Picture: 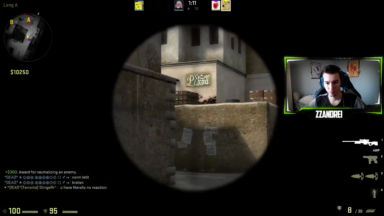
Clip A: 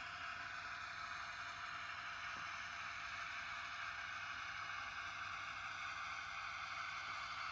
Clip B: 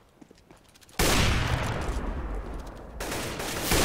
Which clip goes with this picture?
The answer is B